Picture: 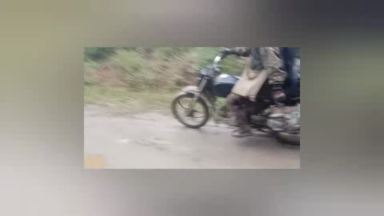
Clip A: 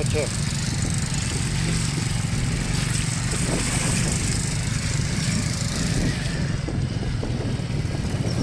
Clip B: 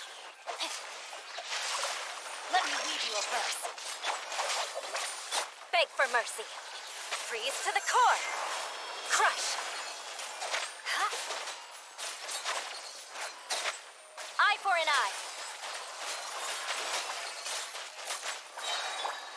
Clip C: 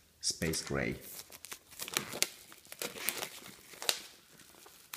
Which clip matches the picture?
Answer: A